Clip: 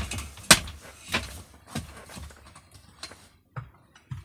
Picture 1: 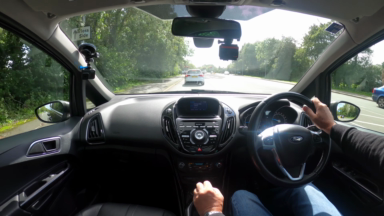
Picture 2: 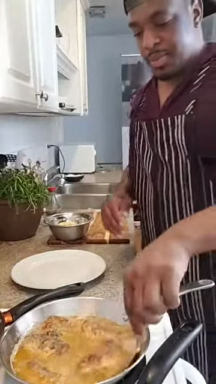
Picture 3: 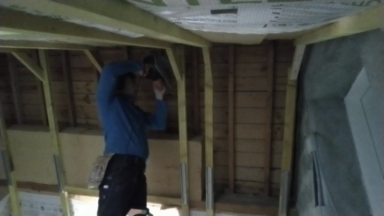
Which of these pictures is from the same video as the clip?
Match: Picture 3